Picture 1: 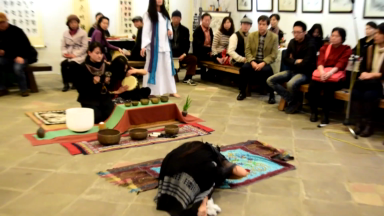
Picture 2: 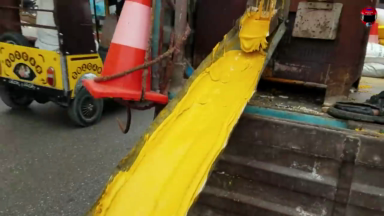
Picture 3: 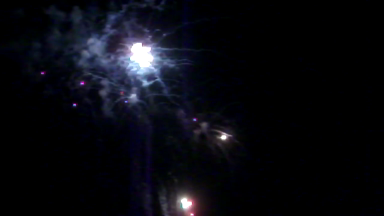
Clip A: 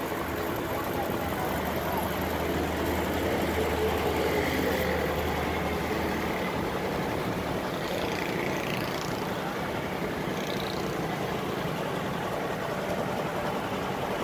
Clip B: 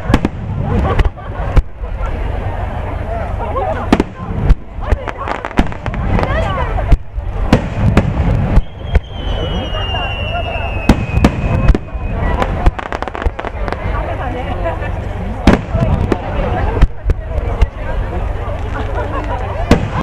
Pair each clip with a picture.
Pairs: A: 2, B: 3